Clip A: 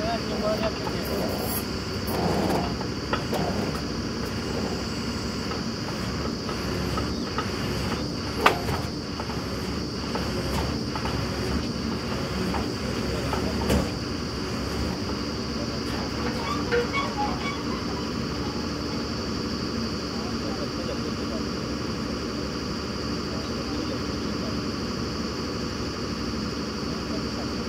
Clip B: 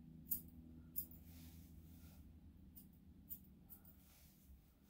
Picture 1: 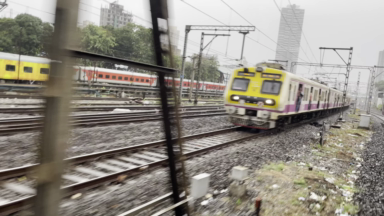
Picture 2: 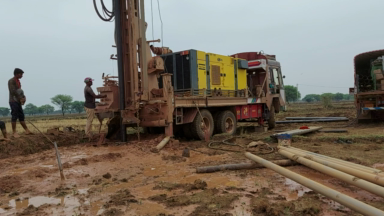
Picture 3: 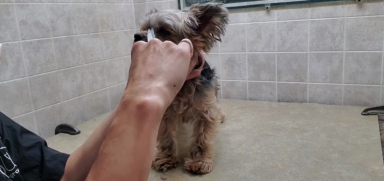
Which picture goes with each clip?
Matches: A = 2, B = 3